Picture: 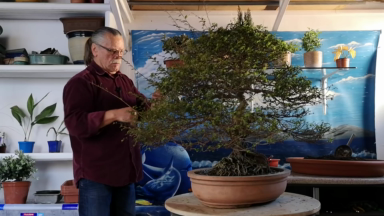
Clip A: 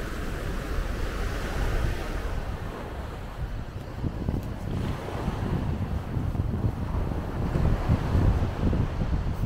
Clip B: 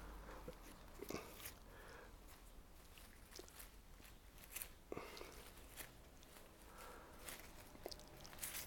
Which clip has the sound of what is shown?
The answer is B